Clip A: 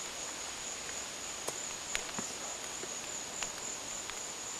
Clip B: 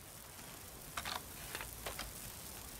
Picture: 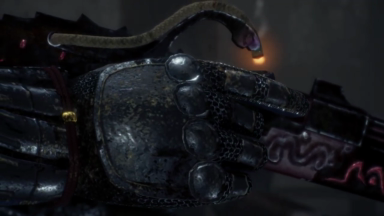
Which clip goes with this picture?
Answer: B